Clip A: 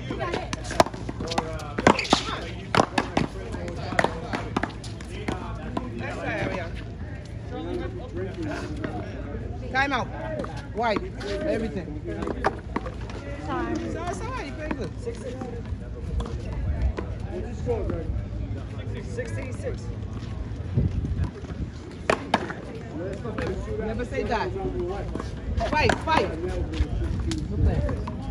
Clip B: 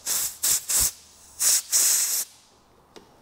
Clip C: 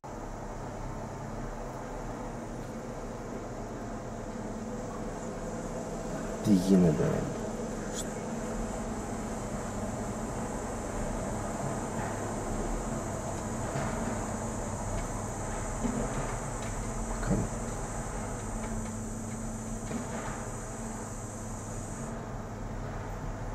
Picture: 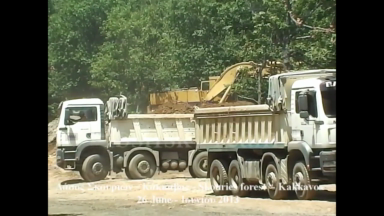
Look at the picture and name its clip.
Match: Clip C